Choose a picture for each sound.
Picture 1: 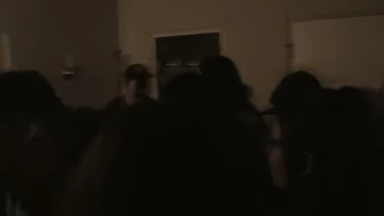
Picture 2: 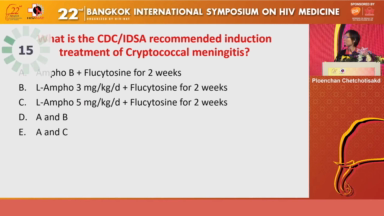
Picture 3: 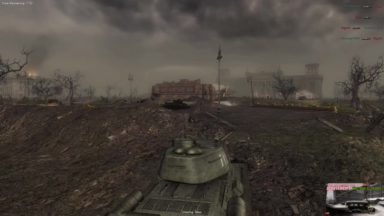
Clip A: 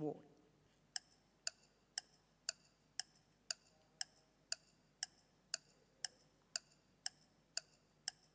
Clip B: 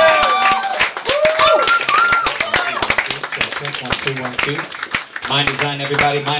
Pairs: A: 2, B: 1